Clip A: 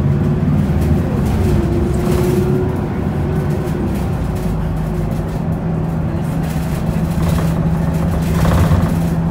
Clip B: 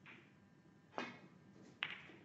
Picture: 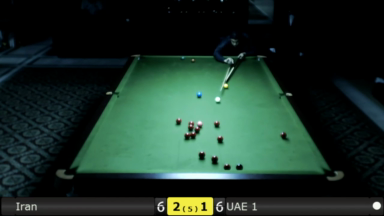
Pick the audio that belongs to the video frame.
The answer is B